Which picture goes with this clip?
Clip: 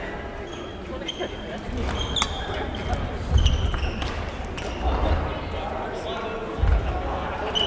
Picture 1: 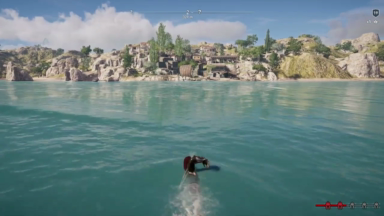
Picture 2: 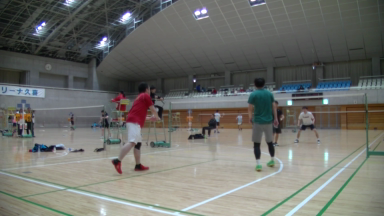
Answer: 2